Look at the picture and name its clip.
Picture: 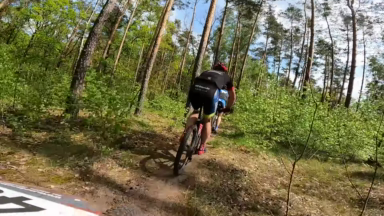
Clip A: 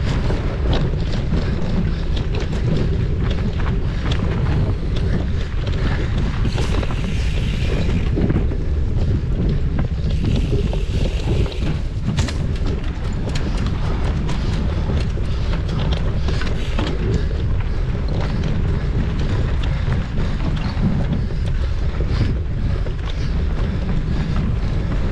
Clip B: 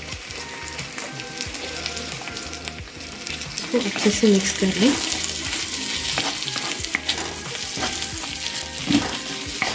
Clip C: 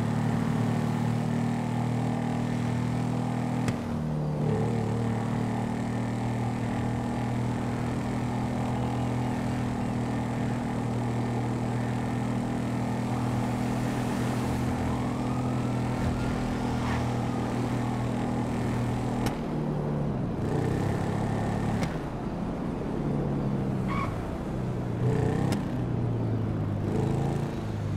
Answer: A